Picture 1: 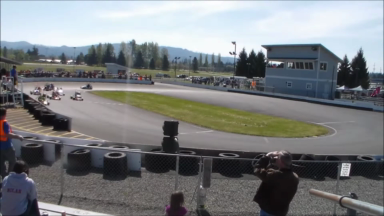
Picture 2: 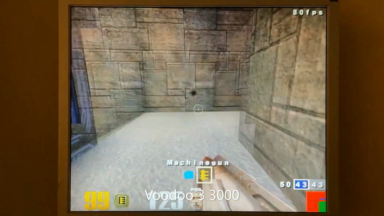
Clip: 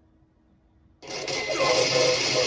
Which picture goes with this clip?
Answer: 2